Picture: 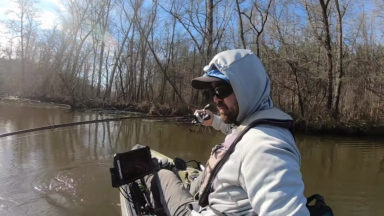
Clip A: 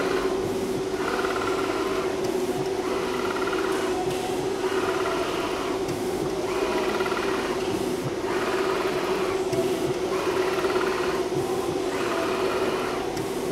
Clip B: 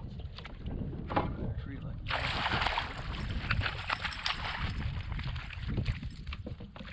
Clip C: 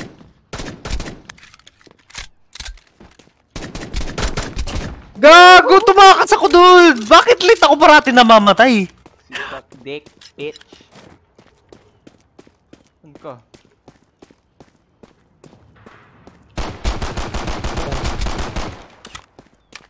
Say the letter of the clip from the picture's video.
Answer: B